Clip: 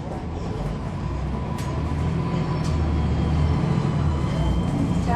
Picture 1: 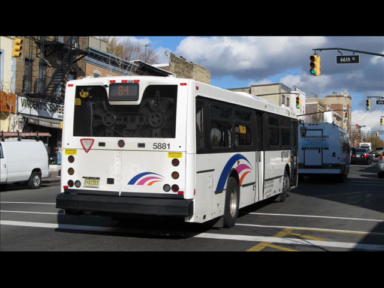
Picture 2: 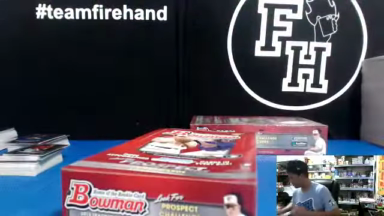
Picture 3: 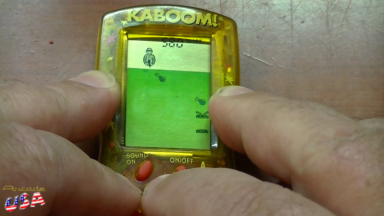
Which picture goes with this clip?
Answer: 1